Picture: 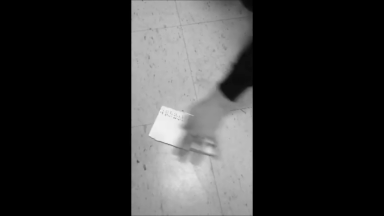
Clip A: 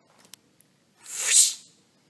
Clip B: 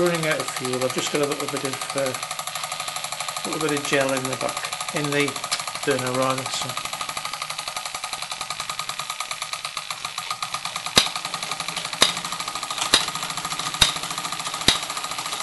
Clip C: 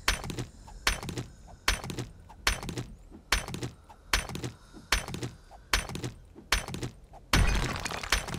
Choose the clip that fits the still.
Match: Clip A